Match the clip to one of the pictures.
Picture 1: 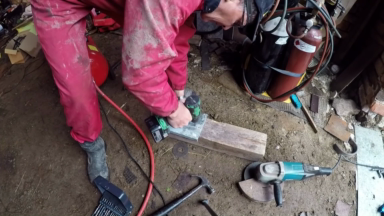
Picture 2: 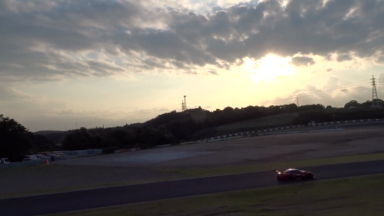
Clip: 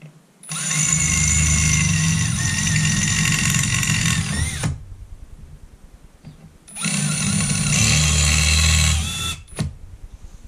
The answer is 1